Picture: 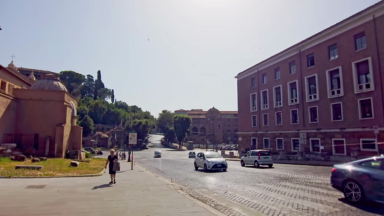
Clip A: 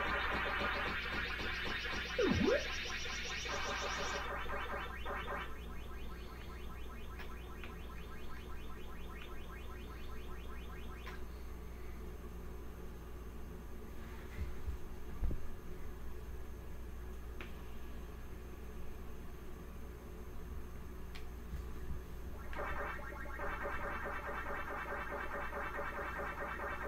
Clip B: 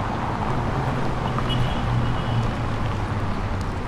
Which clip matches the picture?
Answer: B